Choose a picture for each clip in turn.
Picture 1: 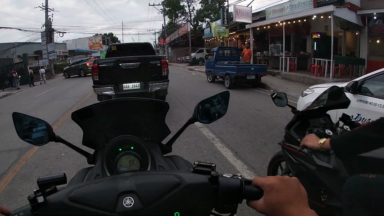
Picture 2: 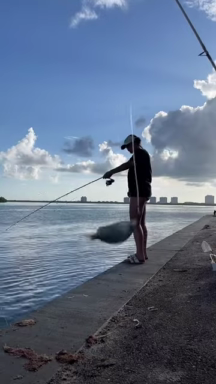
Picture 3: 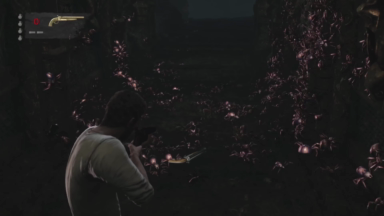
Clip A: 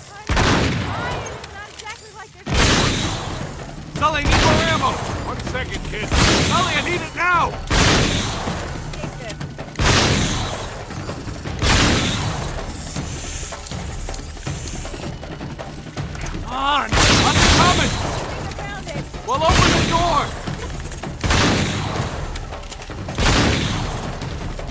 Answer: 3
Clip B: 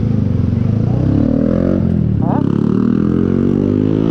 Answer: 1